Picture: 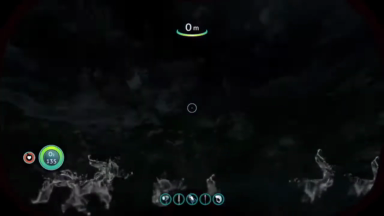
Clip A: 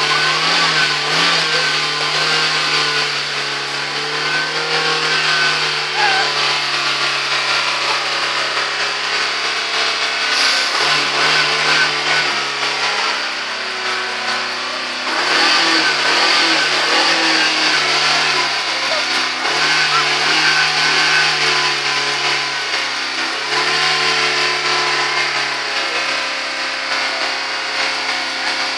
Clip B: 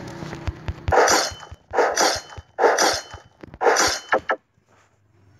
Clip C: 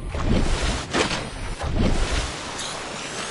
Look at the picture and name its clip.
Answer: C